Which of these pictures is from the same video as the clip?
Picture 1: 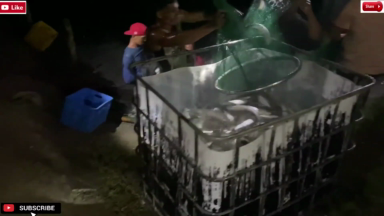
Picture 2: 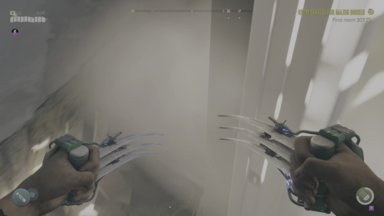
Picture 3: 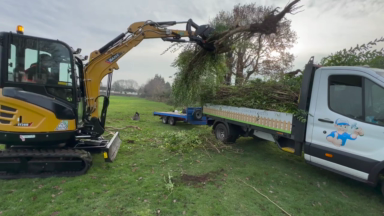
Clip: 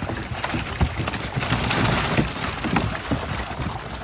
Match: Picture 1